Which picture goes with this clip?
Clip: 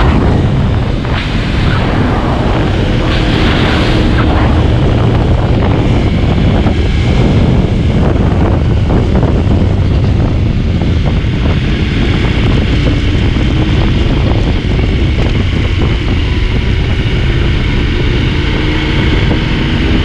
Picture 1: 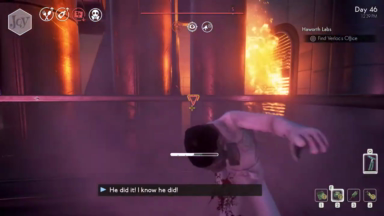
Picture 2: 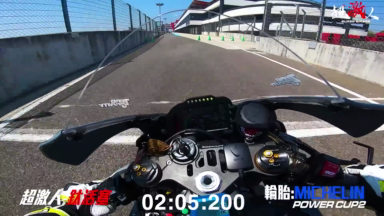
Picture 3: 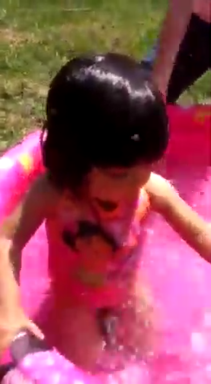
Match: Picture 2